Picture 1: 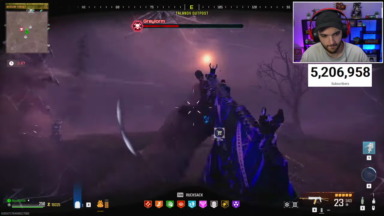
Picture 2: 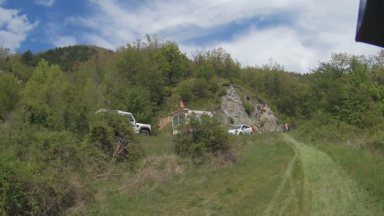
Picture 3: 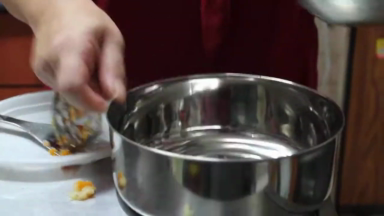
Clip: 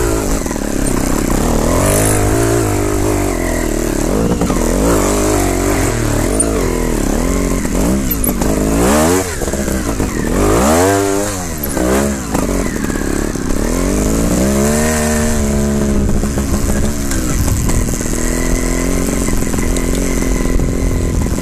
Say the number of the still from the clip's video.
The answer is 2